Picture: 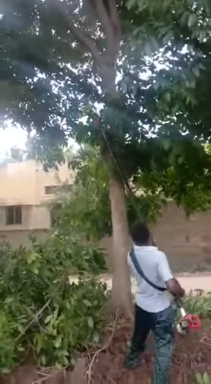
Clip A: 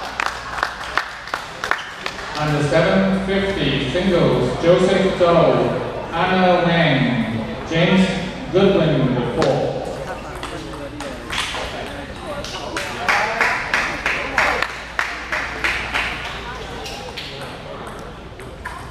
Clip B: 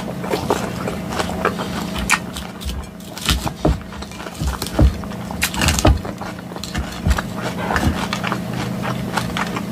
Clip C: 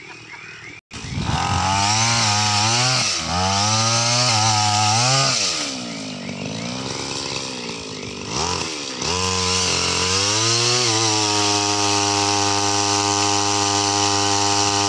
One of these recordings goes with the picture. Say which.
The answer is C